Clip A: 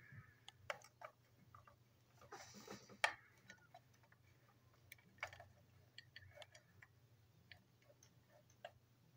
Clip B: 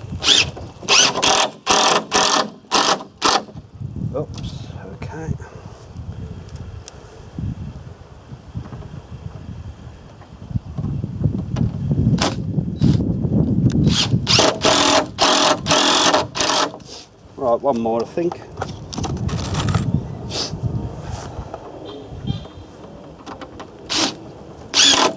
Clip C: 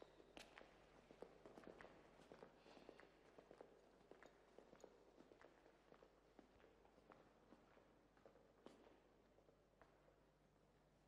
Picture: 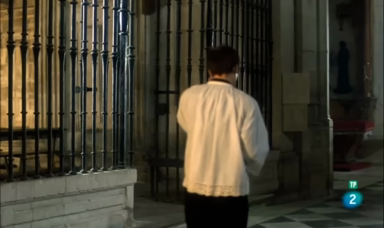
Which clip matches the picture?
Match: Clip C